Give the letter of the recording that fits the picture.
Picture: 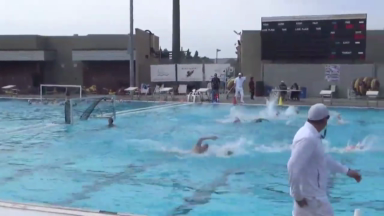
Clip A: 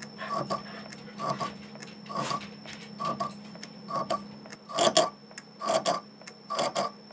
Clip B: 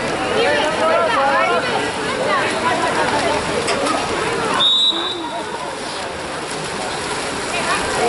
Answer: B